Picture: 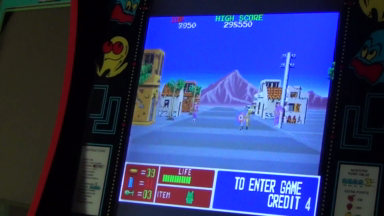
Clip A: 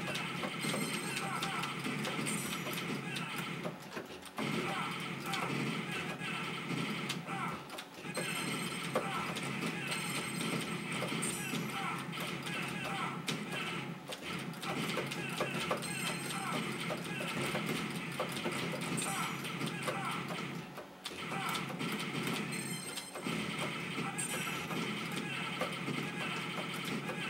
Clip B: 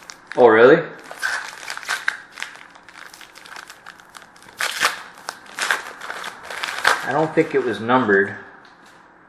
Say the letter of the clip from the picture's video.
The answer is A